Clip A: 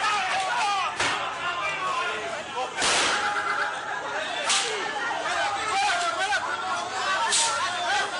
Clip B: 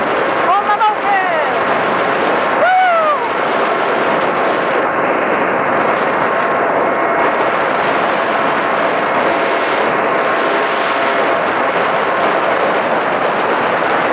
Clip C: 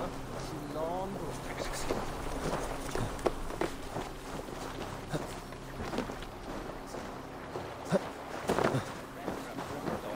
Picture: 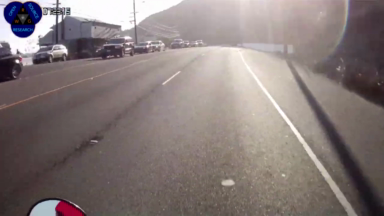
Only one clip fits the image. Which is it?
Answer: B